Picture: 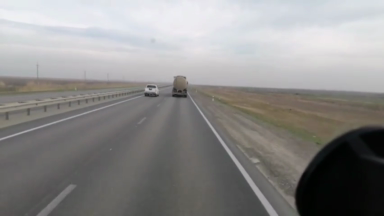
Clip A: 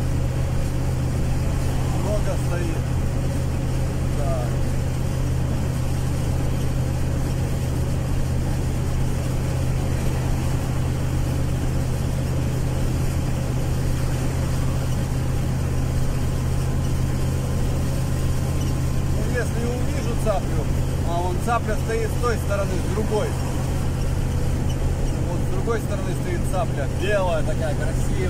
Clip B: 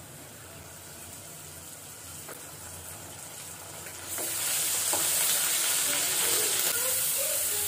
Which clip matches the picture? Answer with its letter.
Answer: A